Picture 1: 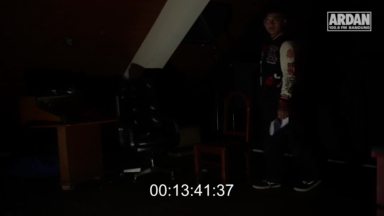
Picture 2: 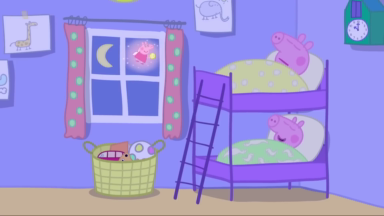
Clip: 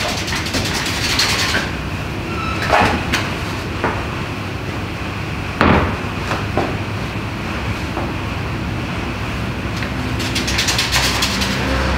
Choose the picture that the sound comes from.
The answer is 1